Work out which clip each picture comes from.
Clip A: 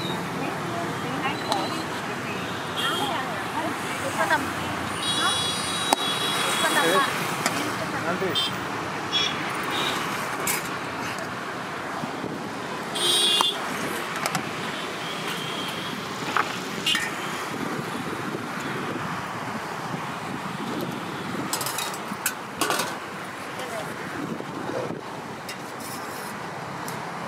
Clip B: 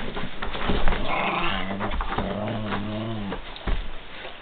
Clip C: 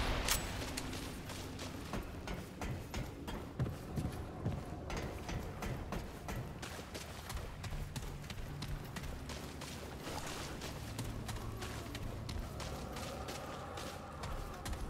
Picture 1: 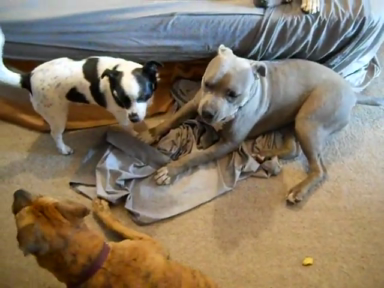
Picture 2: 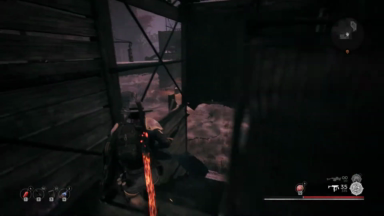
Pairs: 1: B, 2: C